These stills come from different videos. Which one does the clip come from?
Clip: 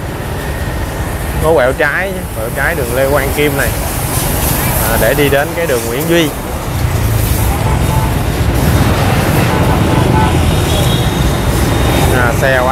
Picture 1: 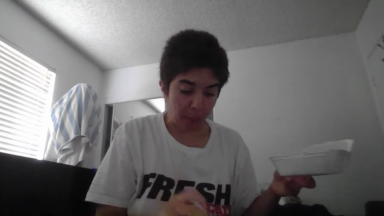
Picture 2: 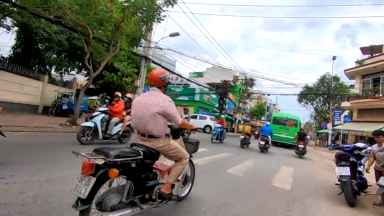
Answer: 2